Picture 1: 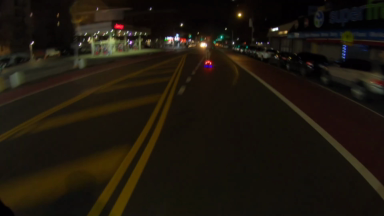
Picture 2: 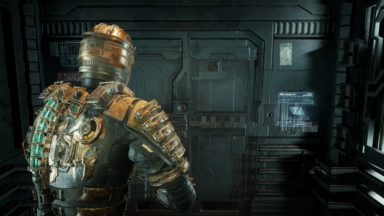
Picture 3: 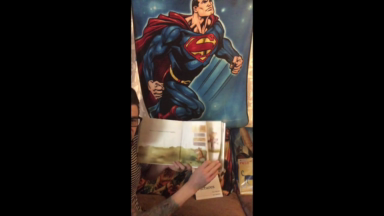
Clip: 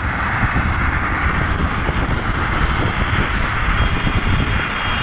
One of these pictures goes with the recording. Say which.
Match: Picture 1